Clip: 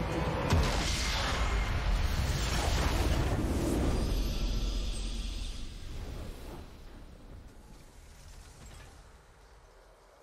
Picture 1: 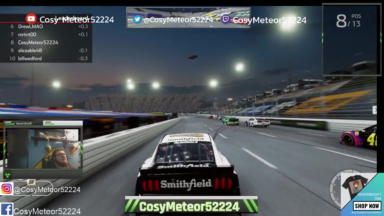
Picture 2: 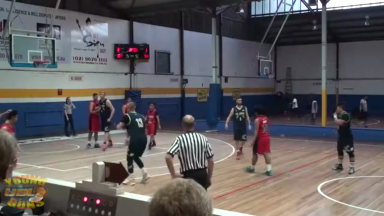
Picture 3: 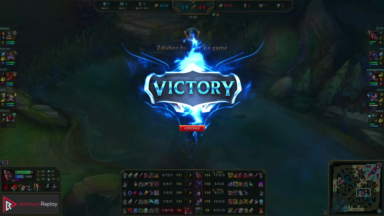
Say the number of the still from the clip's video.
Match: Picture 3